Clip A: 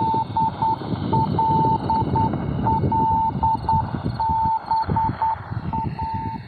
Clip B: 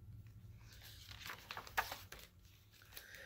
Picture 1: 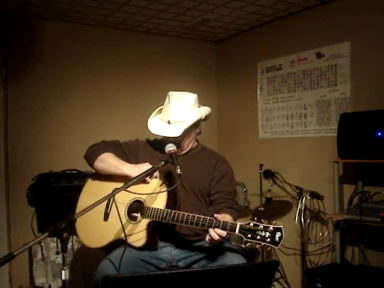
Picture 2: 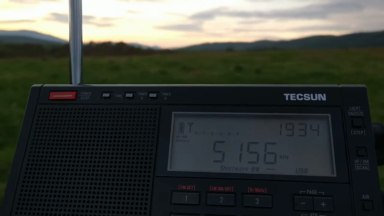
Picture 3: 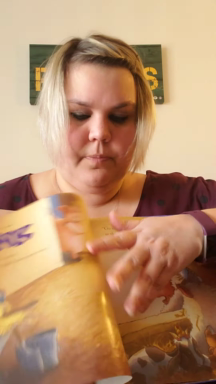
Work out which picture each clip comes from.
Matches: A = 2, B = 3